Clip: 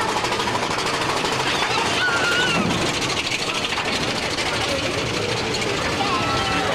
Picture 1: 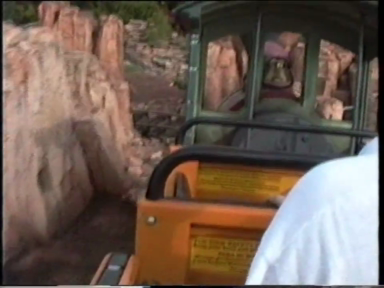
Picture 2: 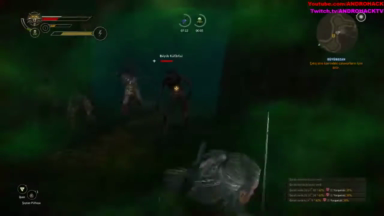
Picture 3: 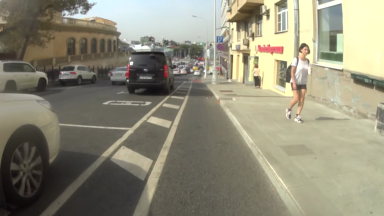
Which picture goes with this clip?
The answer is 1